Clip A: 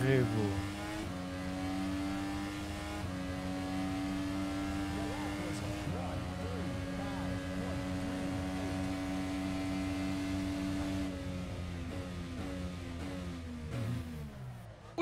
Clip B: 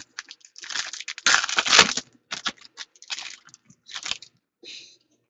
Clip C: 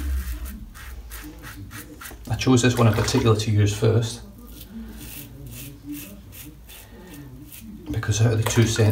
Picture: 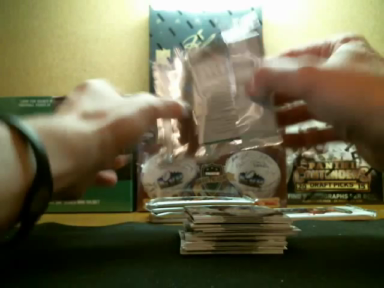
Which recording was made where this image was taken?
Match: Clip B